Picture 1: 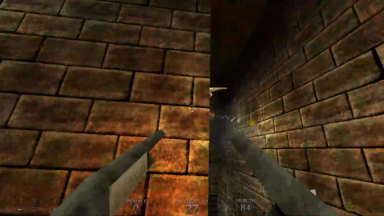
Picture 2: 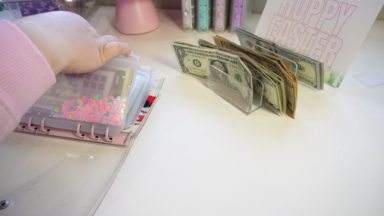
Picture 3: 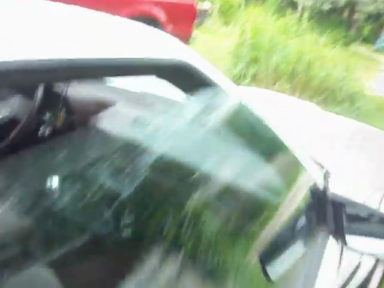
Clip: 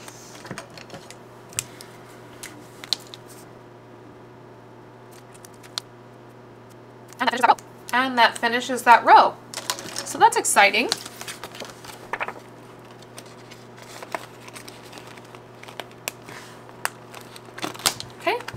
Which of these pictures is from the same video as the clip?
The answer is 2